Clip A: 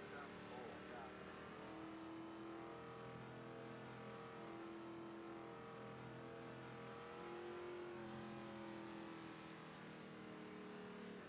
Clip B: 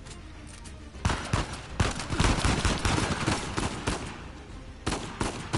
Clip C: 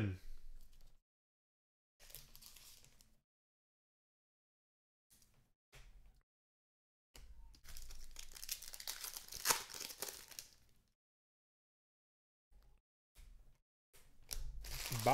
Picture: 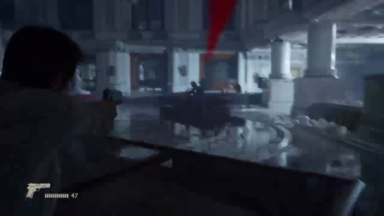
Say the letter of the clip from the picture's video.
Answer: B